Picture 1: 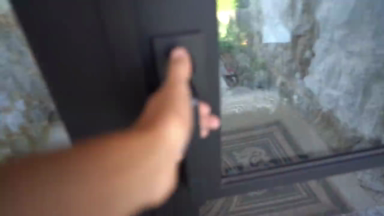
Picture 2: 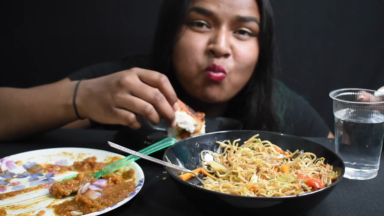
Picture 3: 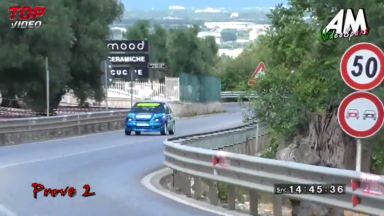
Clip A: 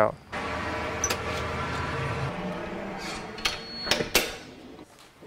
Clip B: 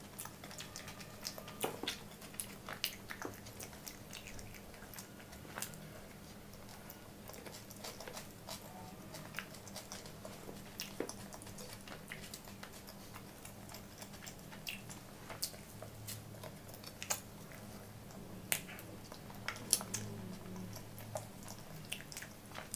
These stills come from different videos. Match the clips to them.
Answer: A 1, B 2